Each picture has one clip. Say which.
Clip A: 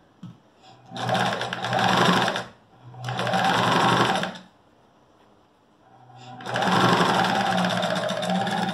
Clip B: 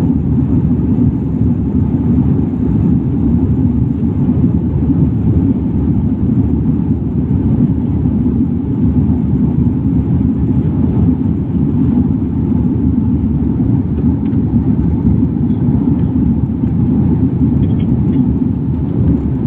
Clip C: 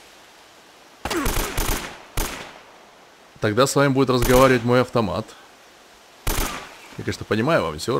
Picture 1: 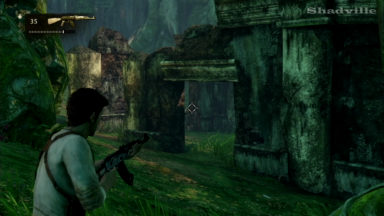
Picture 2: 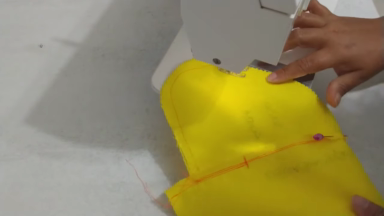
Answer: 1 C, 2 A